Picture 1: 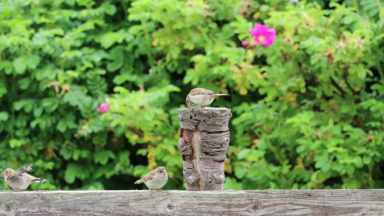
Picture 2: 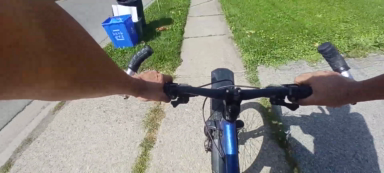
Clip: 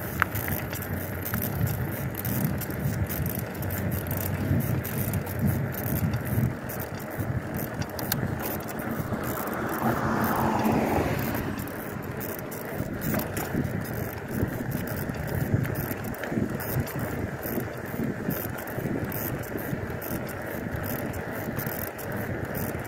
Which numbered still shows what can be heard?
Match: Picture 2